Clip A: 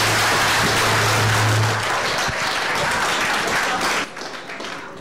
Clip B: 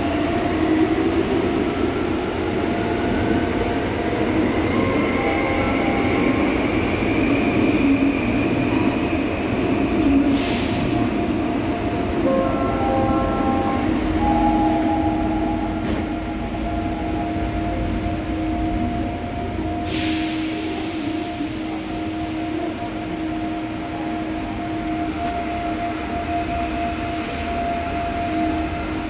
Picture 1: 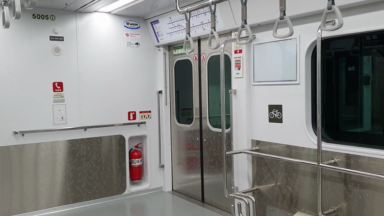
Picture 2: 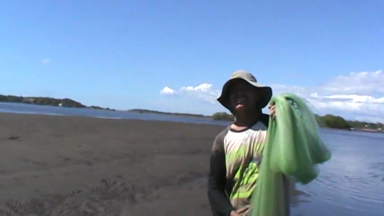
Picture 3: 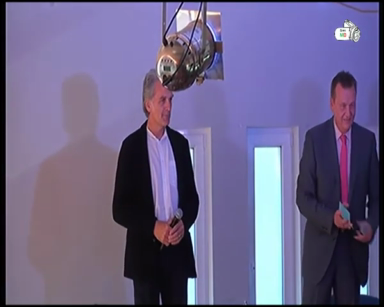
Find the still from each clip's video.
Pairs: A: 3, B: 1